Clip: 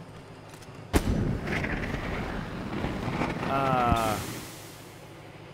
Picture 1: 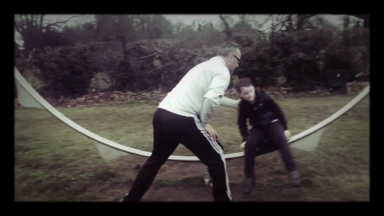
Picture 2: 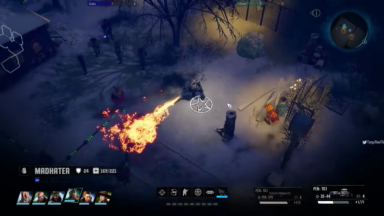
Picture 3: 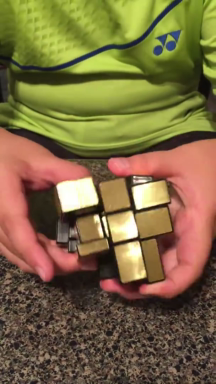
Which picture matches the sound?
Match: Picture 2